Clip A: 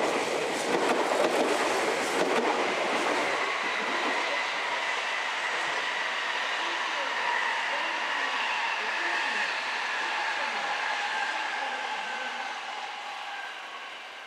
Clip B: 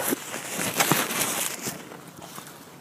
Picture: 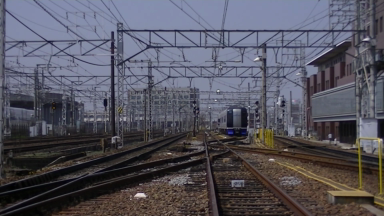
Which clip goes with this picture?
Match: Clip A